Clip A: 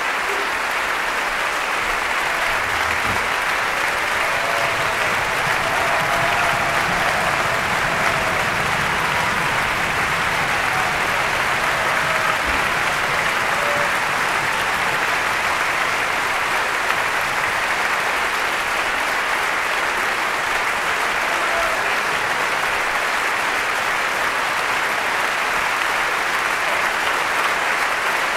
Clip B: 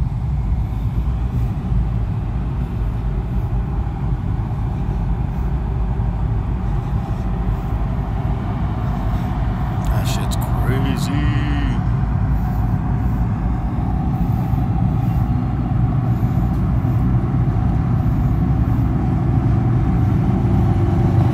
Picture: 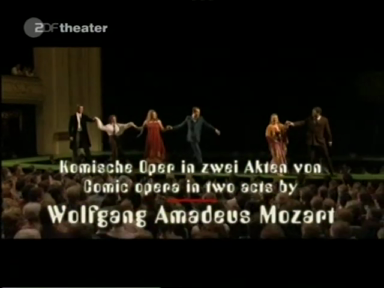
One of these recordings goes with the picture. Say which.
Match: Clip A